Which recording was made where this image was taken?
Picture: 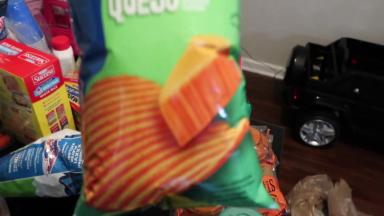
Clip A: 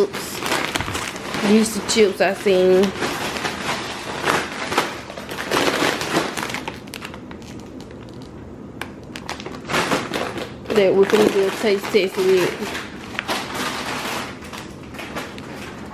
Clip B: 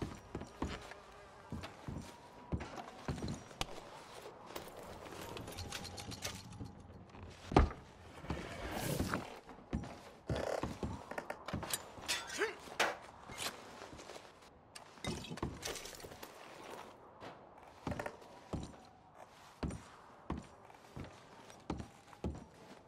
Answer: A